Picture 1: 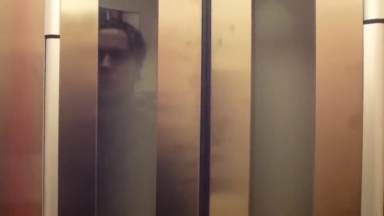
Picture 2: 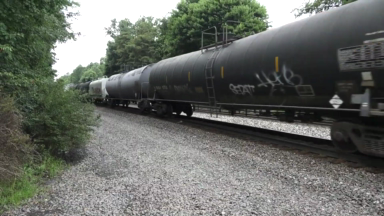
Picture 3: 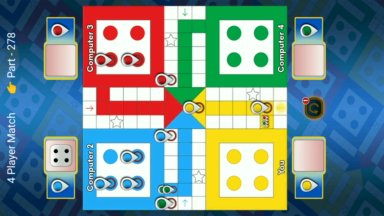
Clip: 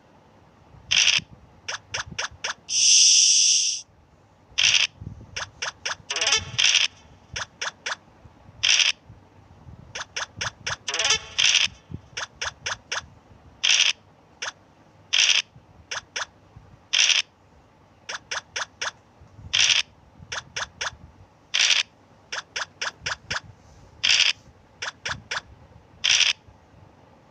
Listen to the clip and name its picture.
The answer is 3